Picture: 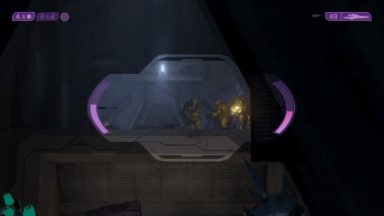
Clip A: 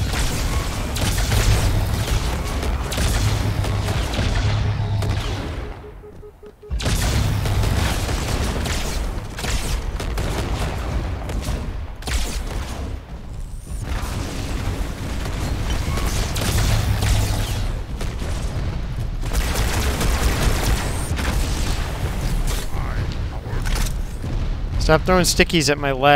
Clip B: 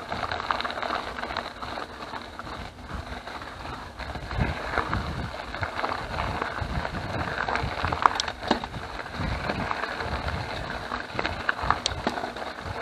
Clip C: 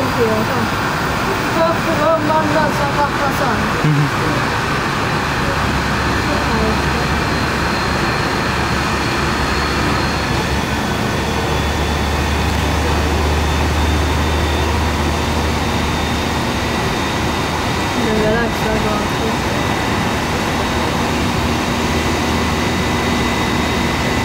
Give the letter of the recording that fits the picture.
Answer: A